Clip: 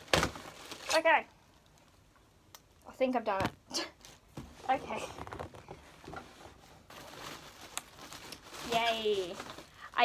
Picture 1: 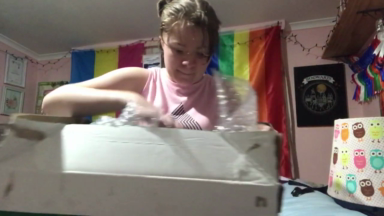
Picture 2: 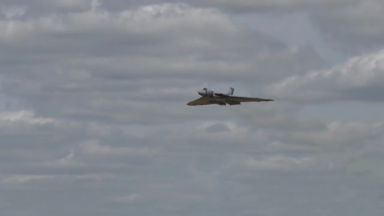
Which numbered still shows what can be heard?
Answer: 1